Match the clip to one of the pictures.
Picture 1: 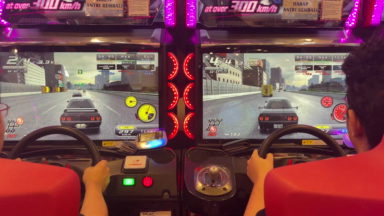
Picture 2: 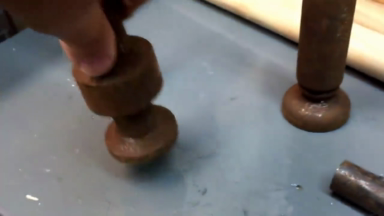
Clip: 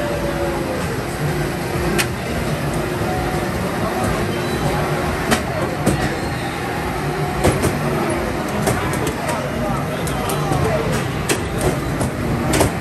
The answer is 1